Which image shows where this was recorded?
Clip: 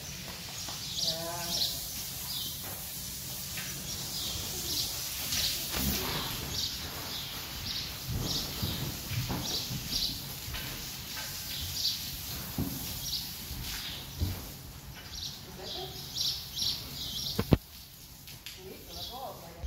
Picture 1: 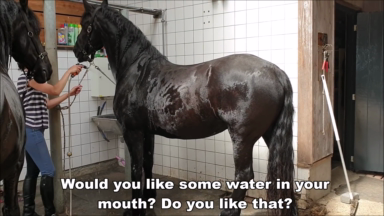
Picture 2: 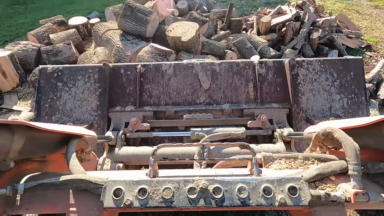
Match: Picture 1